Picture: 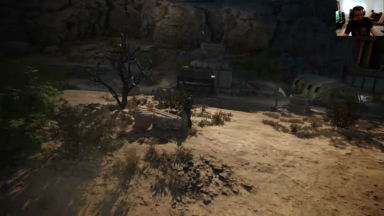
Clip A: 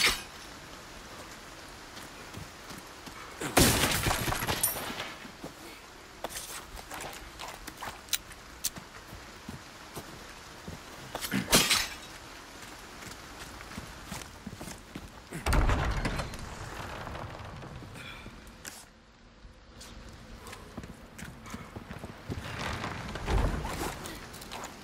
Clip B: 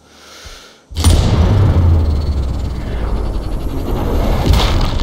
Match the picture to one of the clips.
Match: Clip B